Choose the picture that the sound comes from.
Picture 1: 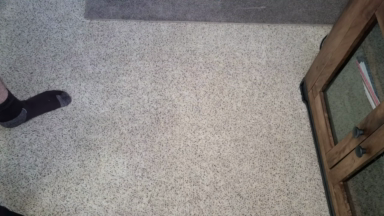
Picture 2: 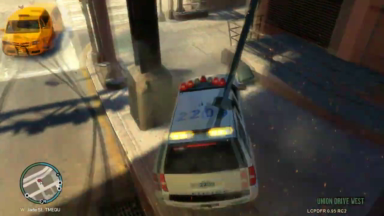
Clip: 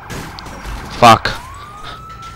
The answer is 2